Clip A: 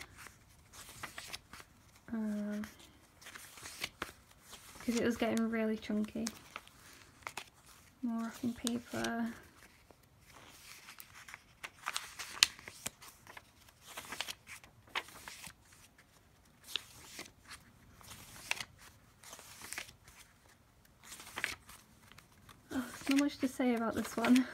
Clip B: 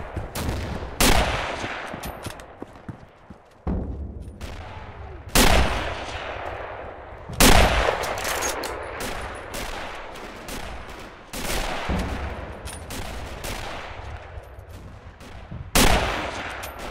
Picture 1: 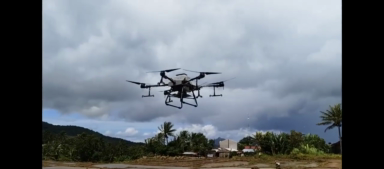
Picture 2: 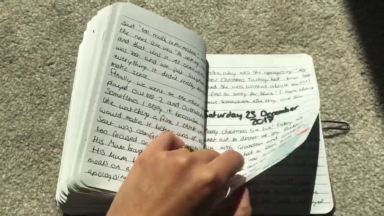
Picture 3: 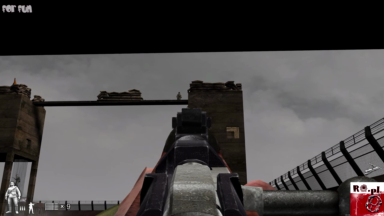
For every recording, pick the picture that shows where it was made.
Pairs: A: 2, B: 3